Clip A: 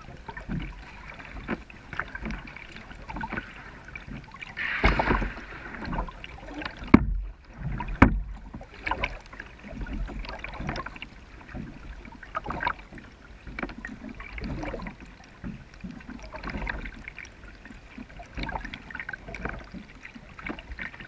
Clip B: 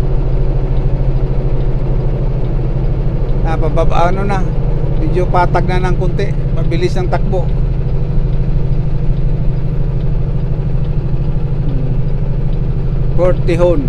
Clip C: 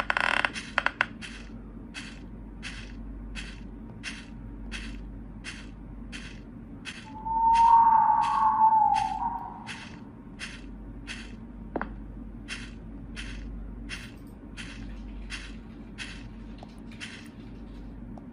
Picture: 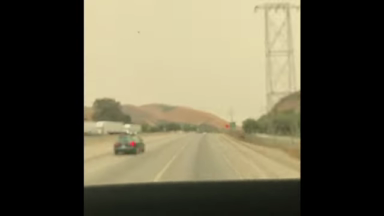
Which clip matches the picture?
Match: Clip B